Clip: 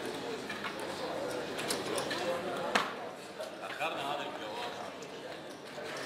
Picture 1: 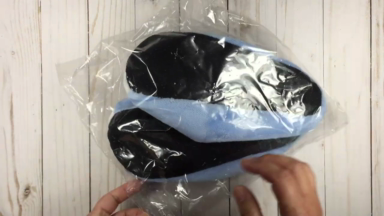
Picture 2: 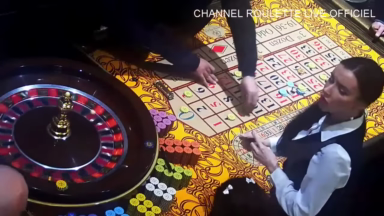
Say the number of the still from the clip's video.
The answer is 2